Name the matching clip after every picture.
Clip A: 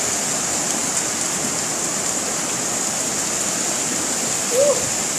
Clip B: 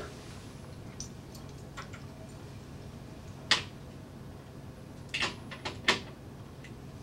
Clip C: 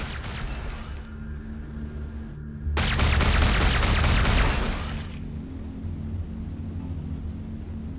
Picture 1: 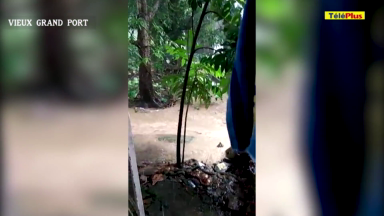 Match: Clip A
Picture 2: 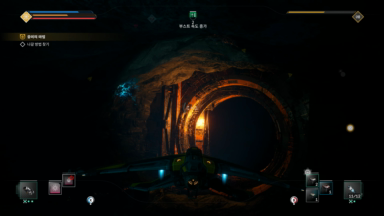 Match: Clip C